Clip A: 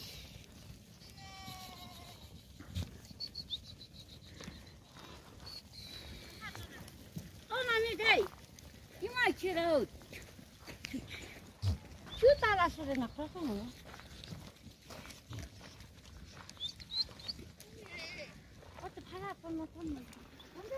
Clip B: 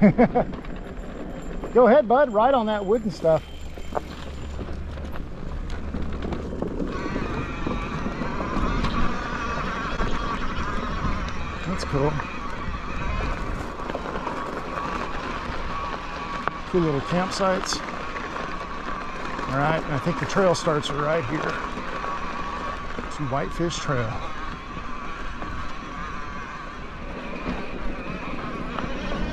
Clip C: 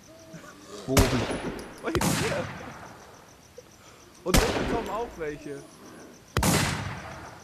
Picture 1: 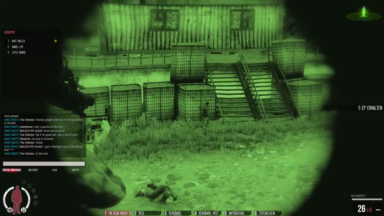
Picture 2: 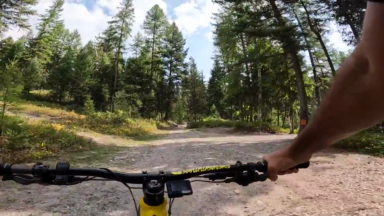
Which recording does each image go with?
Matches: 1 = C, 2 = B